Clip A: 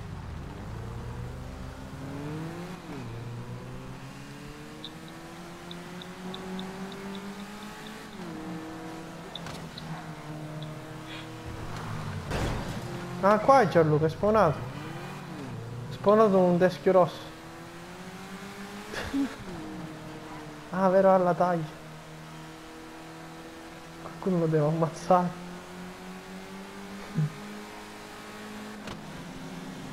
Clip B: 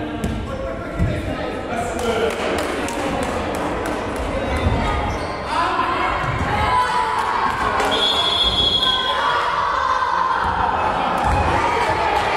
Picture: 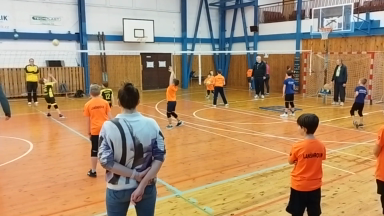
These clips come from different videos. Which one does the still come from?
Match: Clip B